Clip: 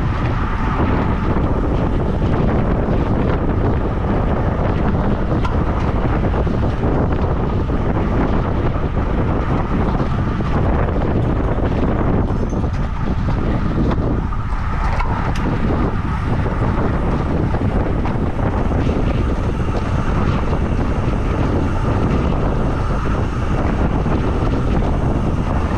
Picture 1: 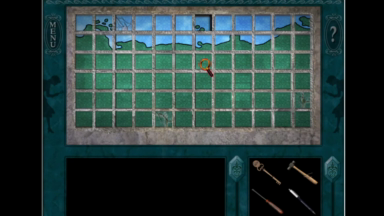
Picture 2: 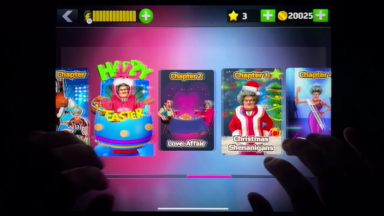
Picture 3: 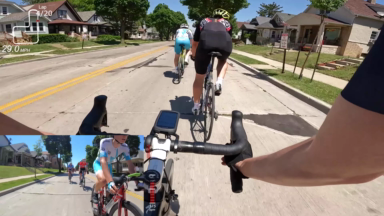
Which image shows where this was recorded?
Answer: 3